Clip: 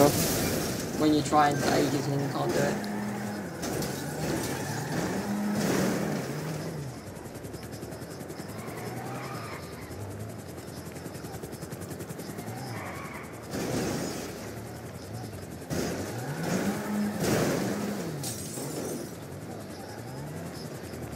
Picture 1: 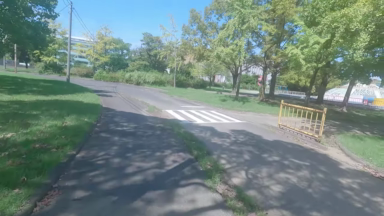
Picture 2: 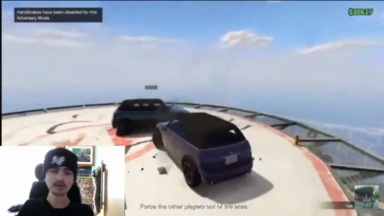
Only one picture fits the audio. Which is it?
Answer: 2